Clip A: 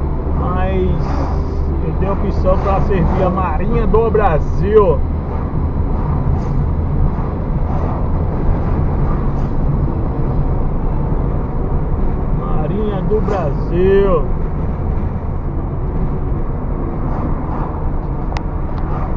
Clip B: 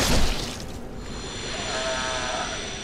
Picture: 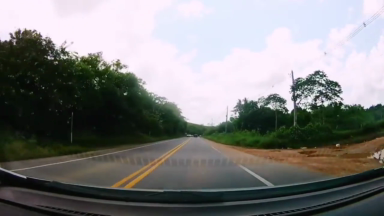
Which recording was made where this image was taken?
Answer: A